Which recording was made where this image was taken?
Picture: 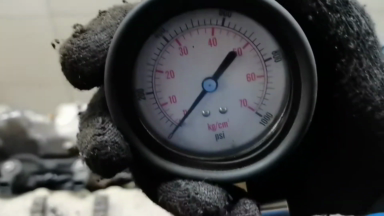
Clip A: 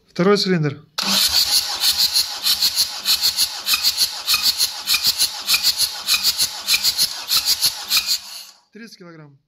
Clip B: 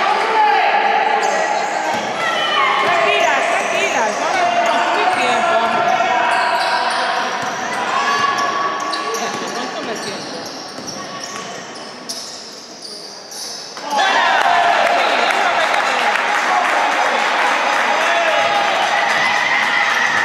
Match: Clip A